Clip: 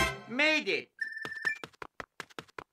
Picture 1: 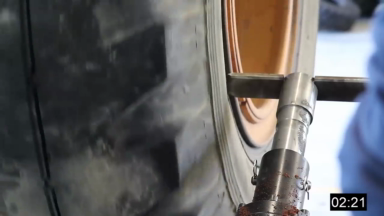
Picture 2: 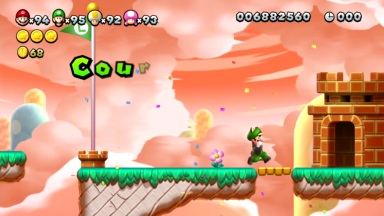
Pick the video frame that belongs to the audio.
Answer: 2